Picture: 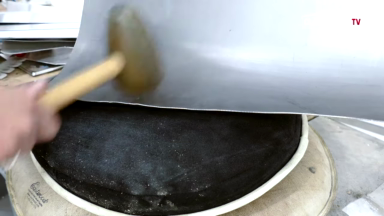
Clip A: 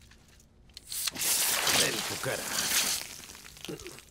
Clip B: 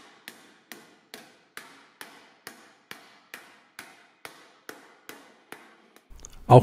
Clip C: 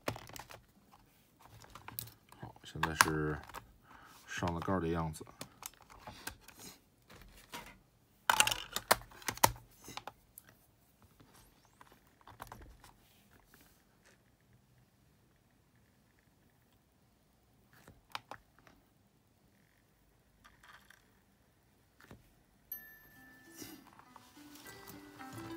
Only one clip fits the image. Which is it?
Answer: B